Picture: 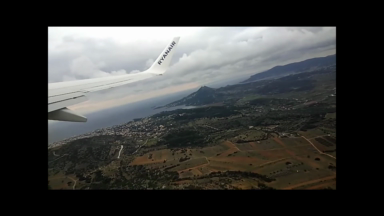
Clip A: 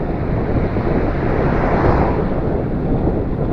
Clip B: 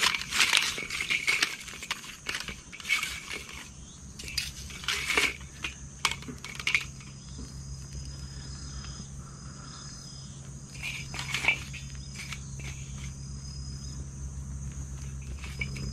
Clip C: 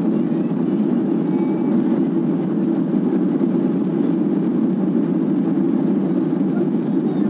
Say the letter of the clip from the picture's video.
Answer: C